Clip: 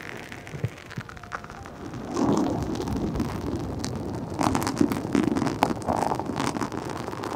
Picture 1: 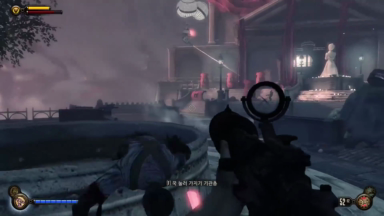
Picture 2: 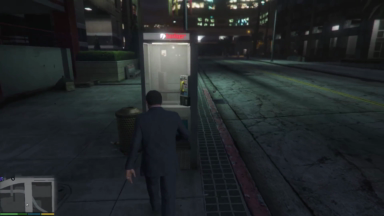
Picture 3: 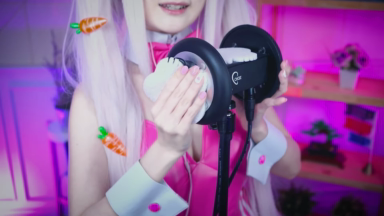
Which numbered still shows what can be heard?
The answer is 3